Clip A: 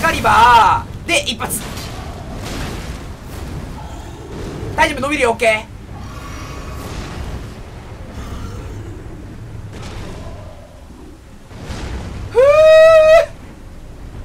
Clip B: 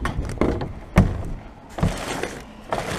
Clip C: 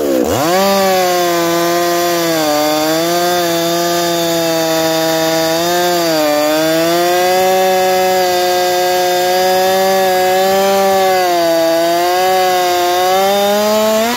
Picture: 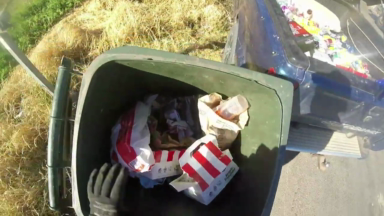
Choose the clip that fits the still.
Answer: B